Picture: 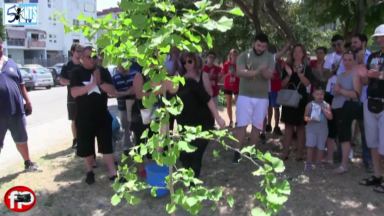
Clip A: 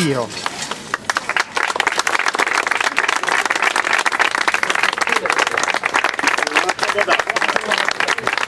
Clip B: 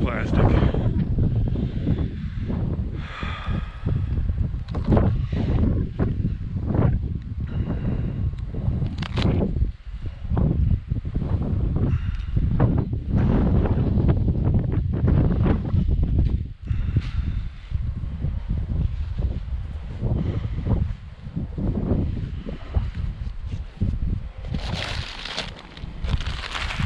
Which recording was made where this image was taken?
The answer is A